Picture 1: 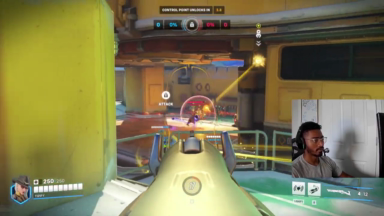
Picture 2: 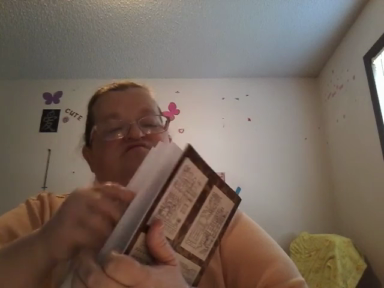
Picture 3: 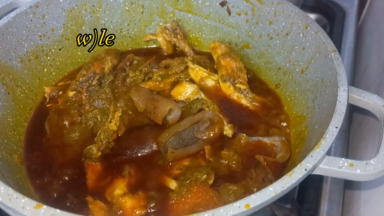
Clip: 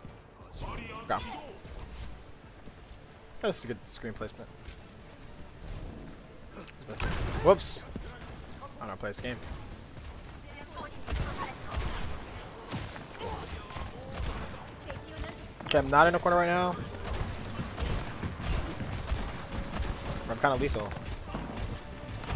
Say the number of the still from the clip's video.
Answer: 1